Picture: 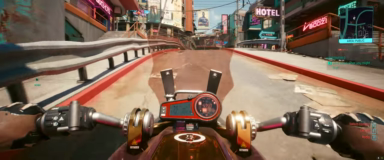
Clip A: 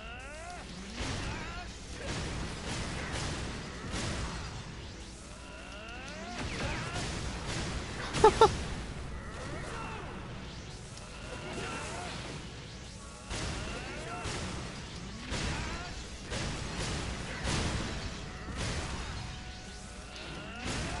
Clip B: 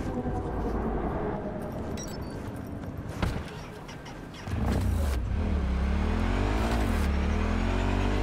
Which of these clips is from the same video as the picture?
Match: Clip B